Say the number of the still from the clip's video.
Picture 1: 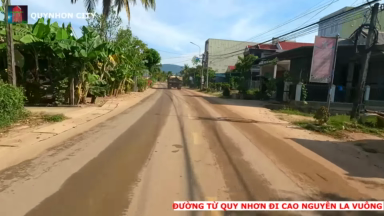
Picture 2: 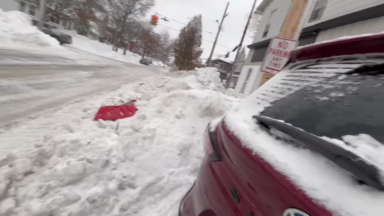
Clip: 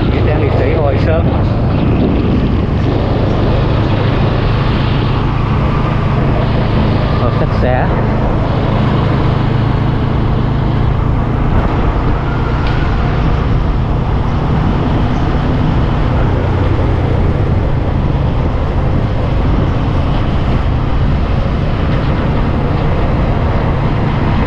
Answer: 1